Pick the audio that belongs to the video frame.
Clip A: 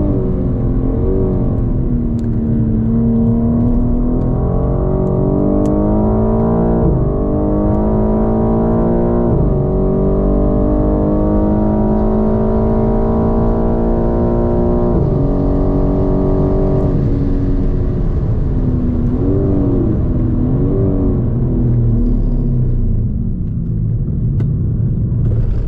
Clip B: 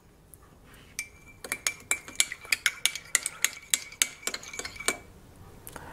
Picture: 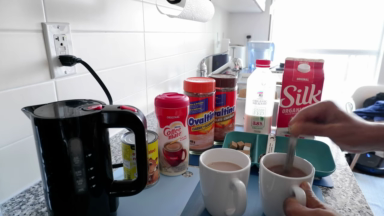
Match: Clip B